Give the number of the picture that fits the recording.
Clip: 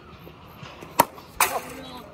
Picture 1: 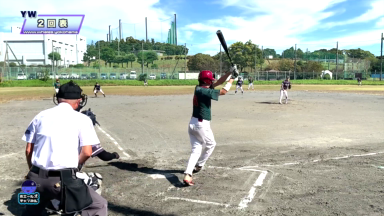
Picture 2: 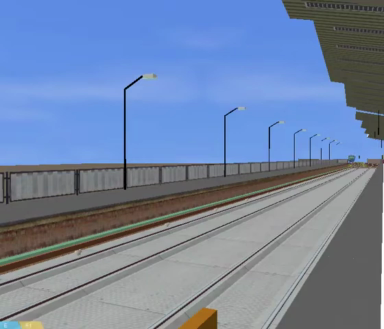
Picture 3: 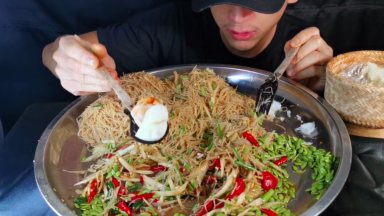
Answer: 1